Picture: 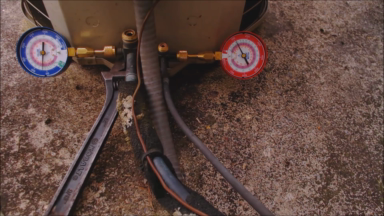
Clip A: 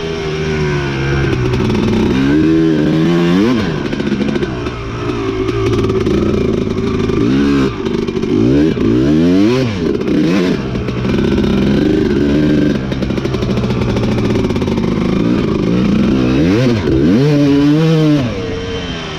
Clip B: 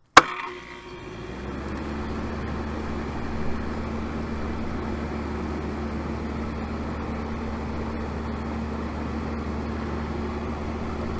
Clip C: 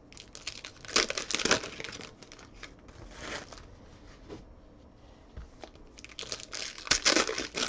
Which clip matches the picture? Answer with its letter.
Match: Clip B